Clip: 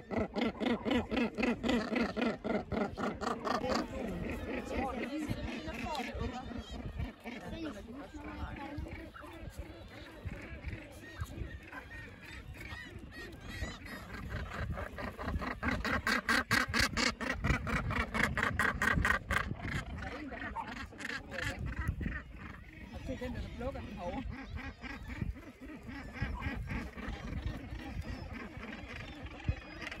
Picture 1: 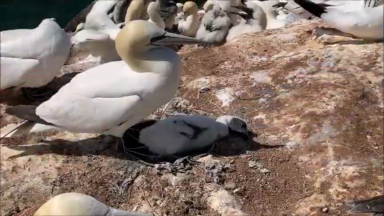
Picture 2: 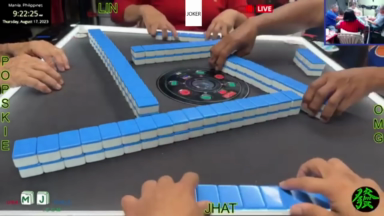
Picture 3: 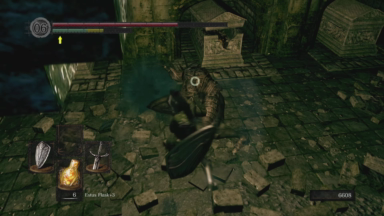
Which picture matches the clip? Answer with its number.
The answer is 1